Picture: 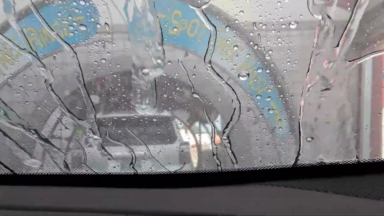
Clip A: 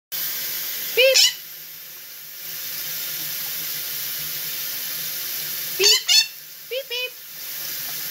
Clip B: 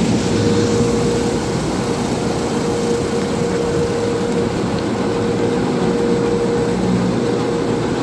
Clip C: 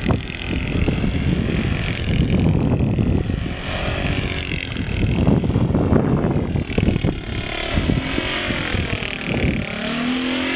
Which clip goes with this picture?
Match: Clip B